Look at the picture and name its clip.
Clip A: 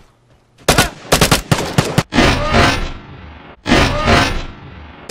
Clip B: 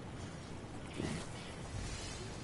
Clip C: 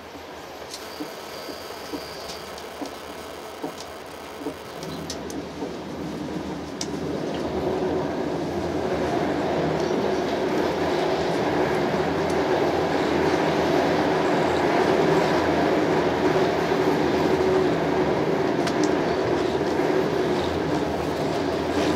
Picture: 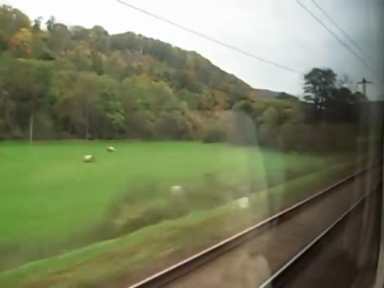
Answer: C